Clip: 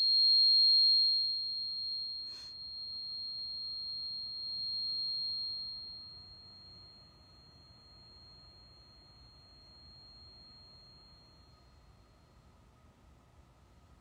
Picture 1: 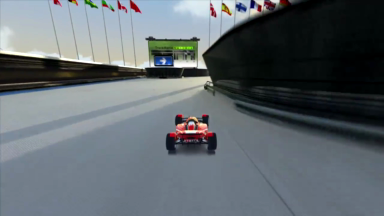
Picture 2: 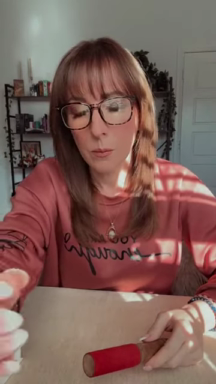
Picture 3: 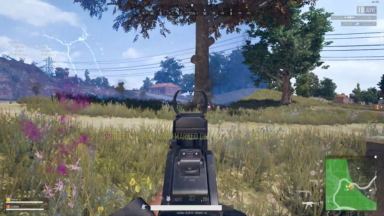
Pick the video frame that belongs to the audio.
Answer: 2